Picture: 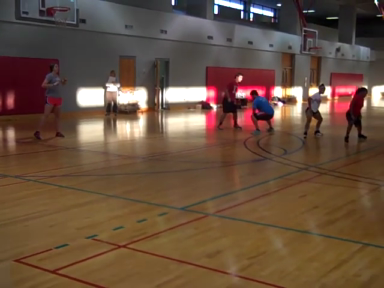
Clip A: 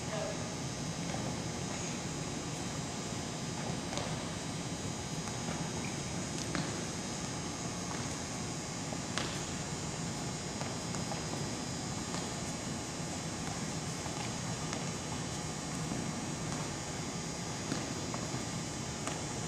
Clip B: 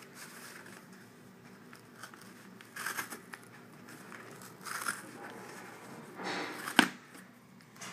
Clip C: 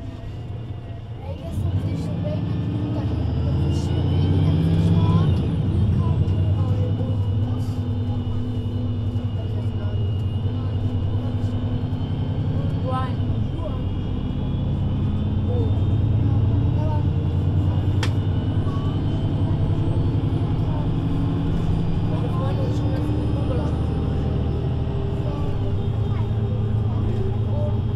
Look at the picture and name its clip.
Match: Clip A